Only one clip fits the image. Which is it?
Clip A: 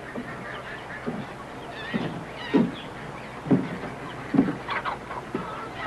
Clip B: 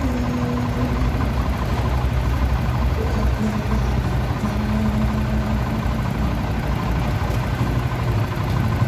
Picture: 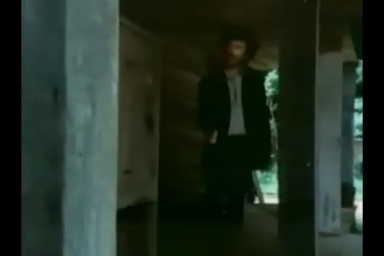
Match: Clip A